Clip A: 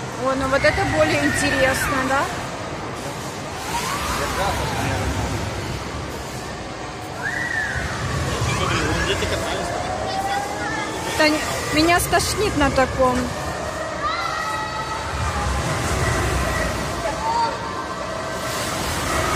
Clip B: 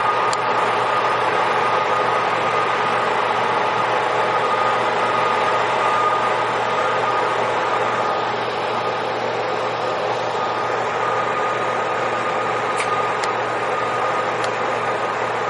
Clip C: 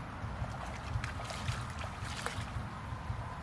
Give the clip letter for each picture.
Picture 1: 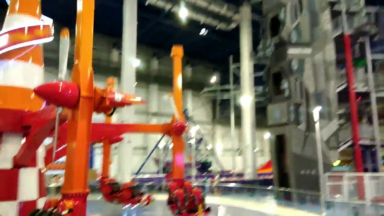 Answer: A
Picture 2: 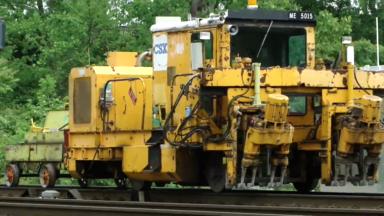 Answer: B